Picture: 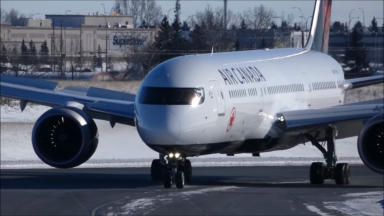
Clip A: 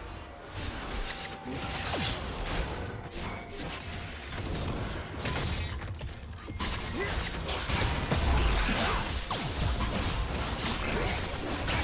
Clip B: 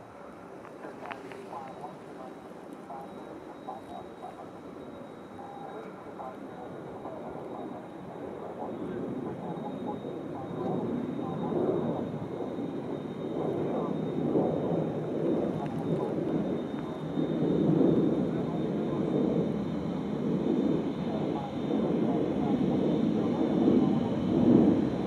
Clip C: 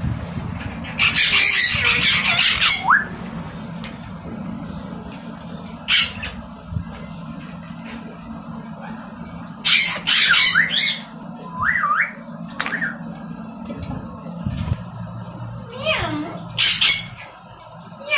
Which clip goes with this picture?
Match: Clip B